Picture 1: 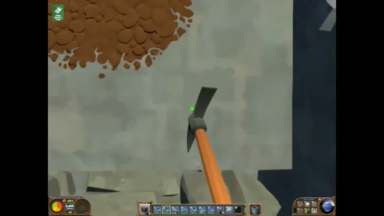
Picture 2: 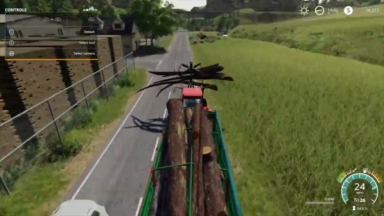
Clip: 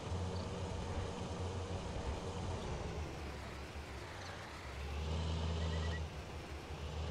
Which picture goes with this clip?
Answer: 2